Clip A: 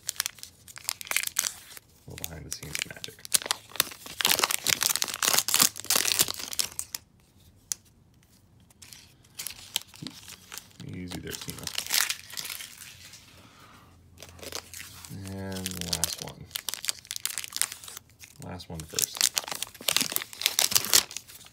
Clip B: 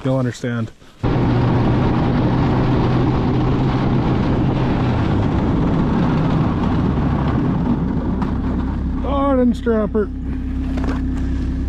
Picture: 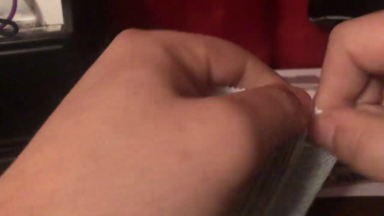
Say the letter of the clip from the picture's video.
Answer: A